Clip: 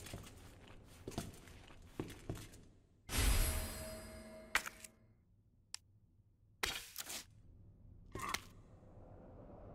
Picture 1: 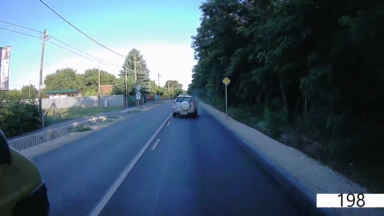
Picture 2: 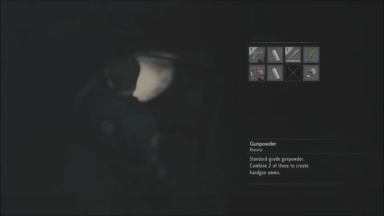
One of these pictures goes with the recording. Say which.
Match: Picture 2